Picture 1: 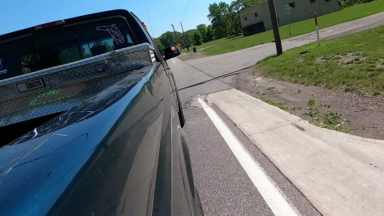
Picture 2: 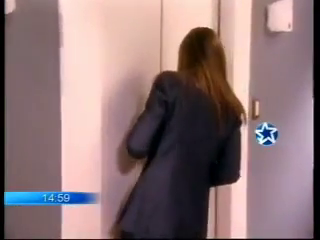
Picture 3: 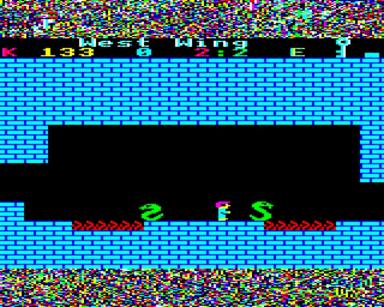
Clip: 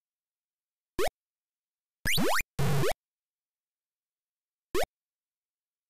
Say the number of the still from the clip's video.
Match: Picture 3